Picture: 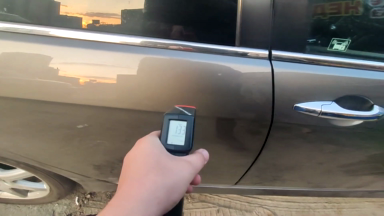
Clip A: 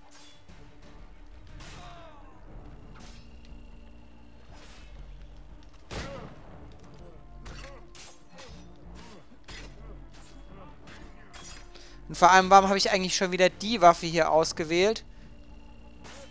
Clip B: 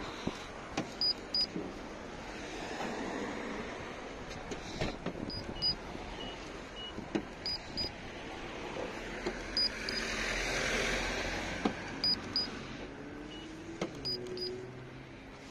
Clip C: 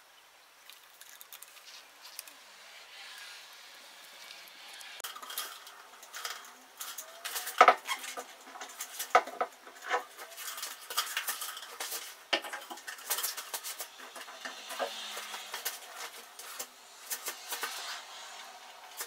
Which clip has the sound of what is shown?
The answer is B